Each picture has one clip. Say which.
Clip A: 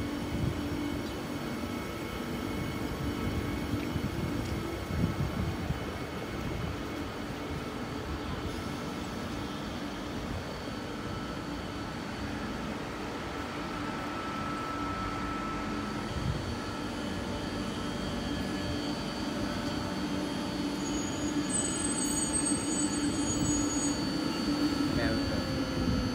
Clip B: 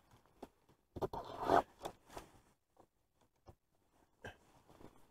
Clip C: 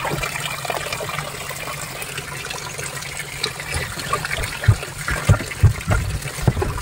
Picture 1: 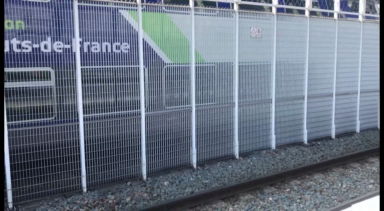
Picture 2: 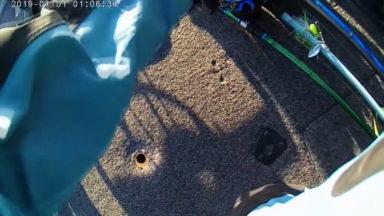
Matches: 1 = A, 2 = B